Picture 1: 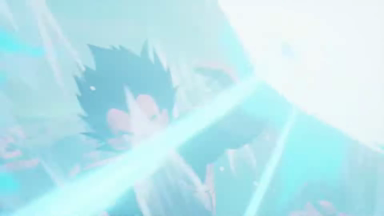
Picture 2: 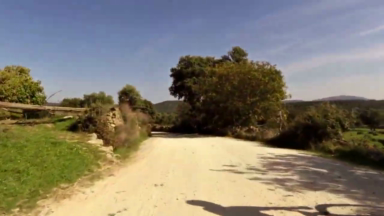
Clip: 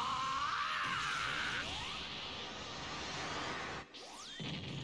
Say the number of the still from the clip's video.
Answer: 1